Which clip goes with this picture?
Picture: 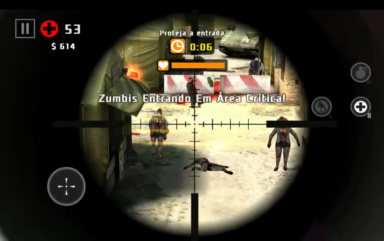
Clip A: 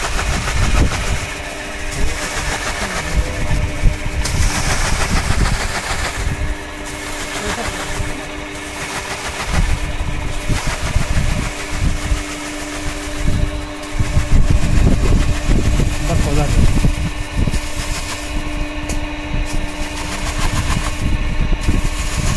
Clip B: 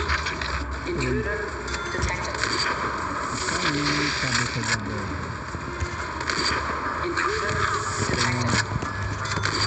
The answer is B